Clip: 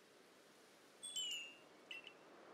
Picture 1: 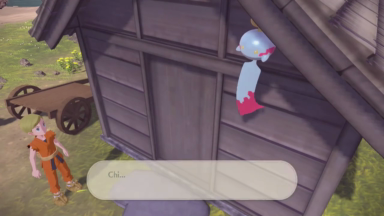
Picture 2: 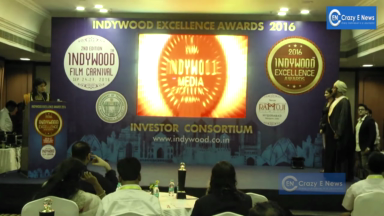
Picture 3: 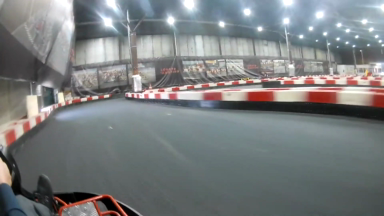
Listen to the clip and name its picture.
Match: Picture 1